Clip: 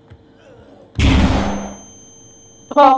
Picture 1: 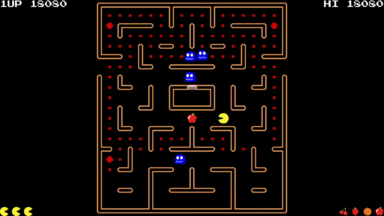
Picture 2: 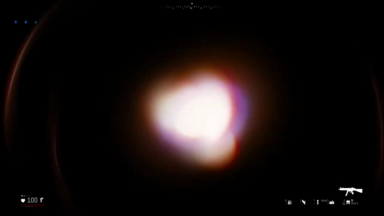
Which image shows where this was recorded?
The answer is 2